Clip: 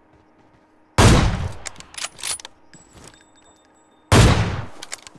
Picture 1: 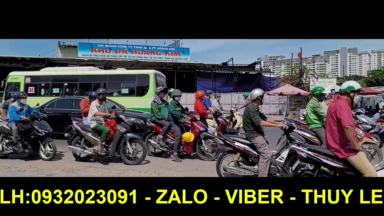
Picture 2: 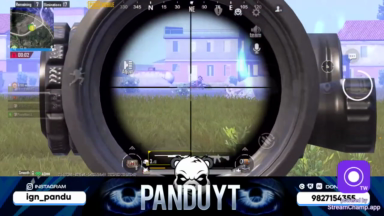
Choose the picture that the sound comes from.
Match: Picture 2